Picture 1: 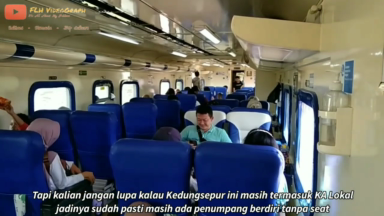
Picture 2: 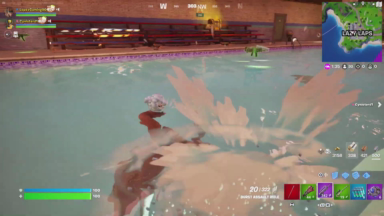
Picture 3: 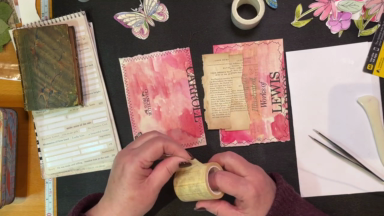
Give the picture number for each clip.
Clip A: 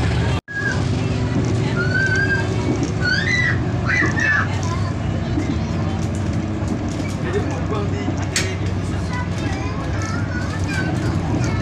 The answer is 1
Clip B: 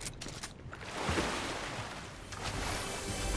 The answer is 2